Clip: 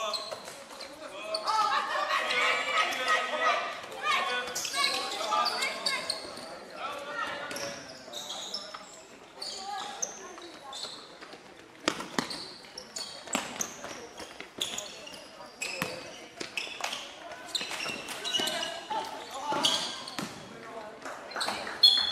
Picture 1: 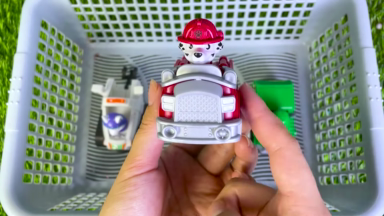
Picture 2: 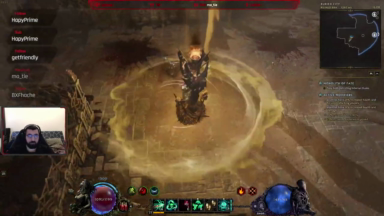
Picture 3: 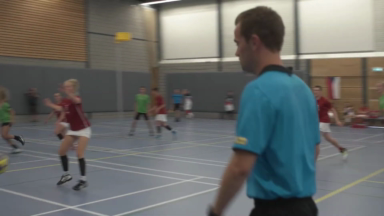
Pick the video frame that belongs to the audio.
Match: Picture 3